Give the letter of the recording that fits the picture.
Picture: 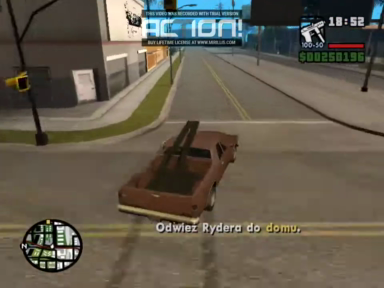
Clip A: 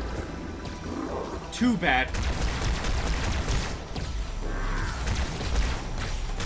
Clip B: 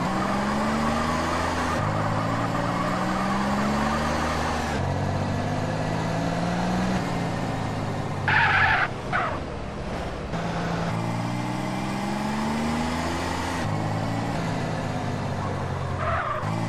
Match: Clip B